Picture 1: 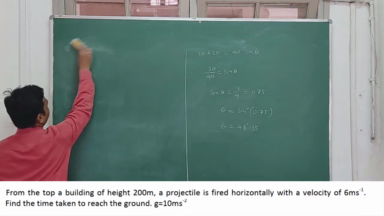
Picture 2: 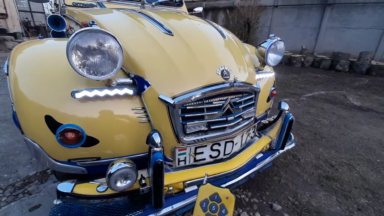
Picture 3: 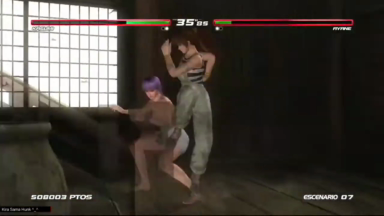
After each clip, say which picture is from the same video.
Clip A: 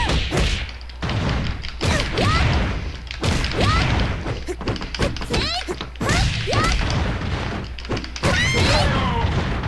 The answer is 3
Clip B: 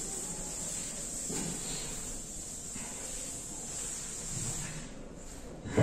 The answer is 1